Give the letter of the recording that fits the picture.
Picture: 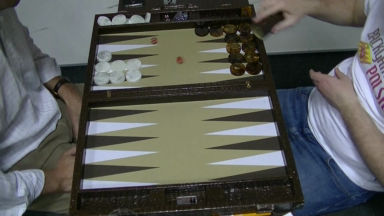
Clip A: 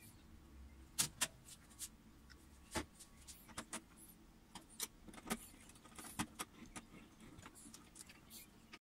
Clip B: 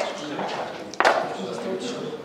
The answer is B